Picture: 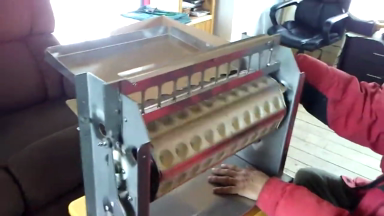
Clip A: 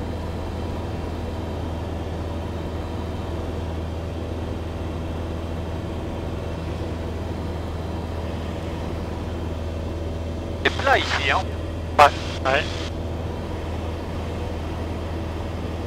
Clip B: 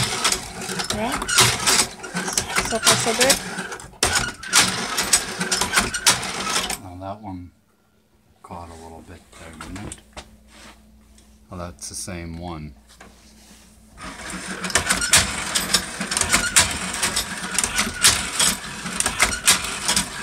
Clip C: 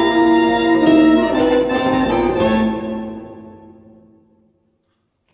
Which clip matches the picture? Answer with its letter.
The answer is B